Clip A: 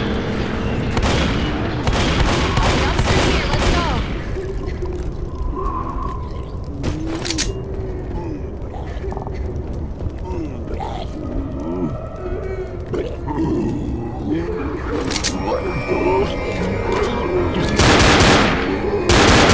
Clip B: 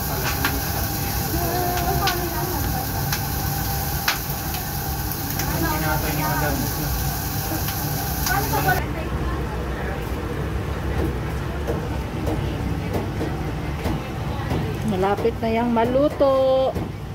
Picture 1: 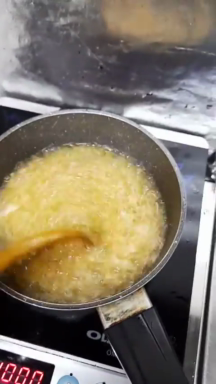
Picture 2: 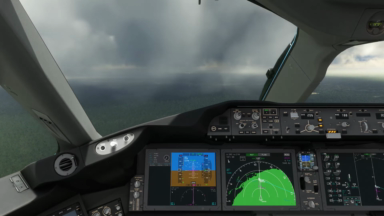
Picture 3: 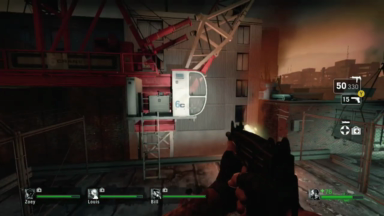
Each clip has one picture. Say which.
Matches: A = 3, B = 1